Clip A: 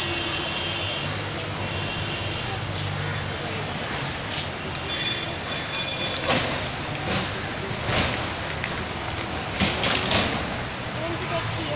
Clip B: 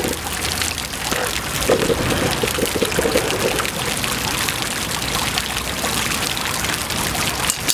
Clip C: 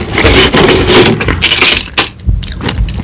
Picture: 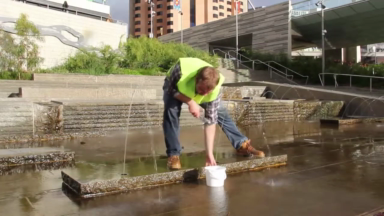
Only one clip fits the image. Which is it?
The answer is B